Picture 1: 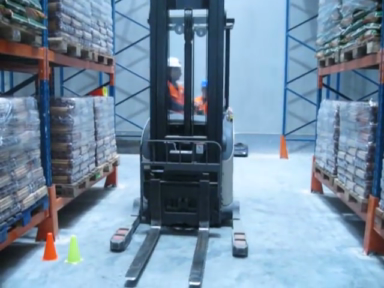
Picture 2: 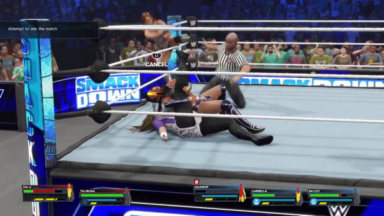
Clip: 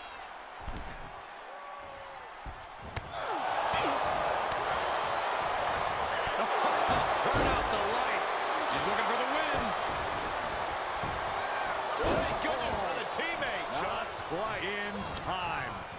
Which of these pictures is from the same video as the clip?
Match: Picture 2